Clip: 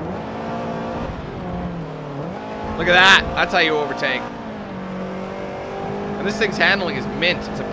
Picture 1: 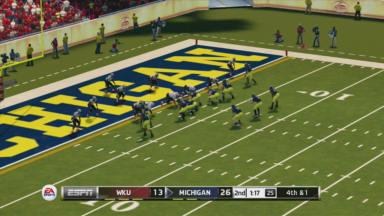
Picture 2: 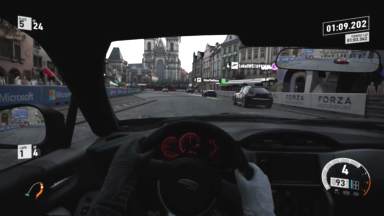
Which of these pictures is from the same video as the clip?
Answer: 2